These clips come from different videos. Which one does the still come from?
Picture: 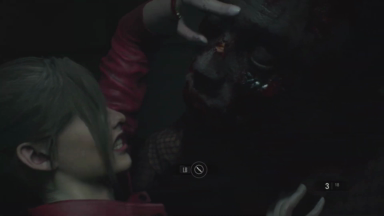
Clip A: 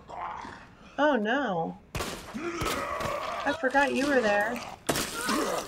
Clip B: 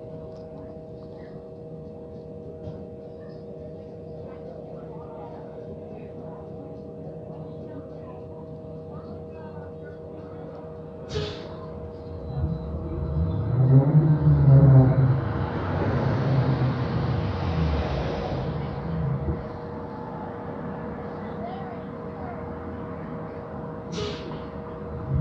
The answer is A